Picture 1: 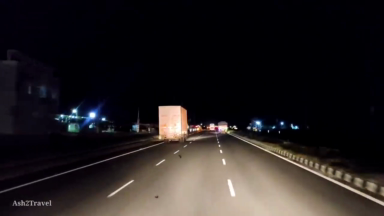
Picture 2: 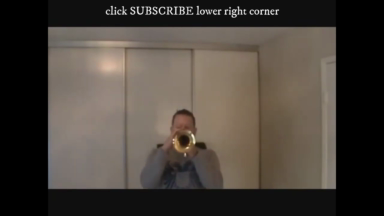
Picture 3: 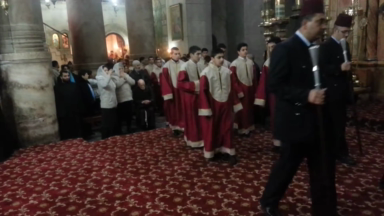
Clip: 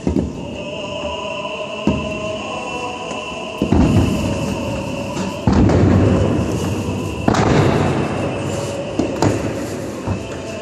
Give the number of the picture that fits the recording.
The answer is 3